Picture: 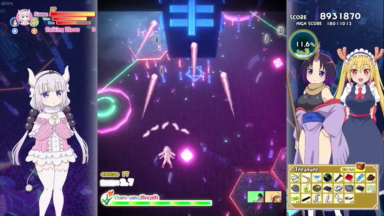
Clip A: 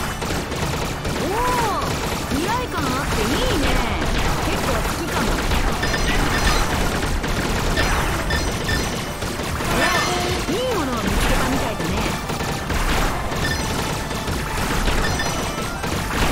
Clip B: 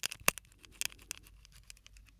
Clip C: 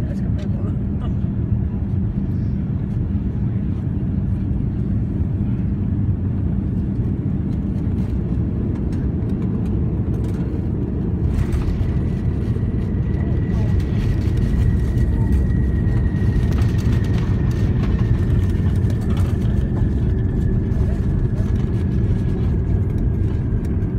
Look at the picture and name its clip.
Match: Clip A